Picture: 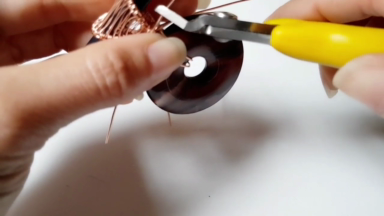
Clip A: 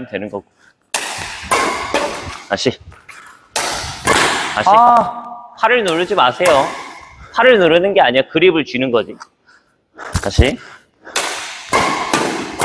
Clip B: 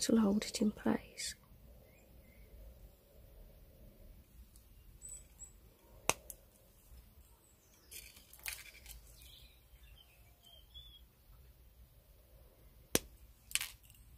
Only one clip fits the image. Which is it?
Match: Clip B